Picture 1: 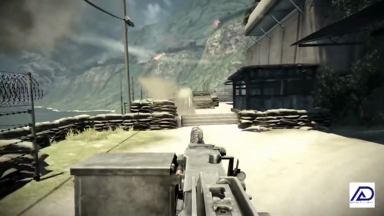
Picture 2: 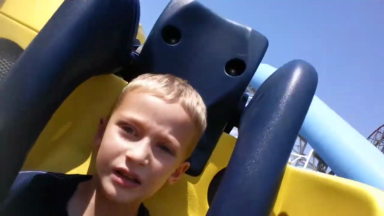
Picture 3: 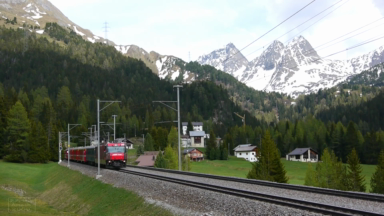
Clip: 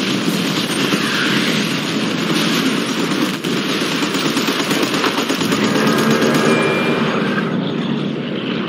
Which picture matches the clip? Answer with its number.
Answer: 1